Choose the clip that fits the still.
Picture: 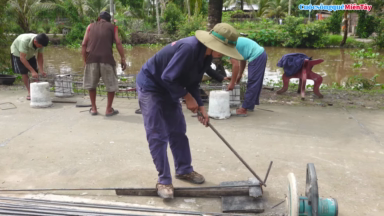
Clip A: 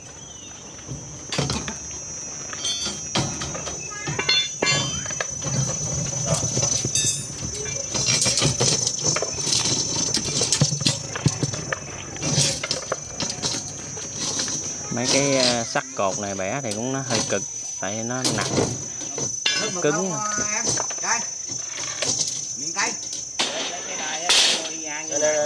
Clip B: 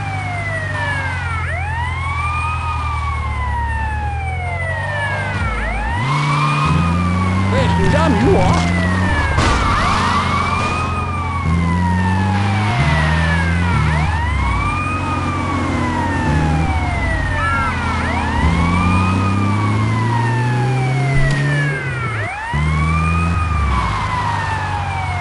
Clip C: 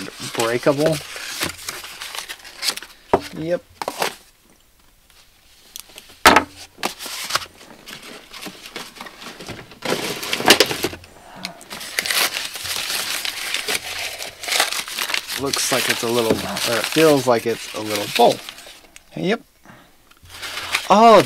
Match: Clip A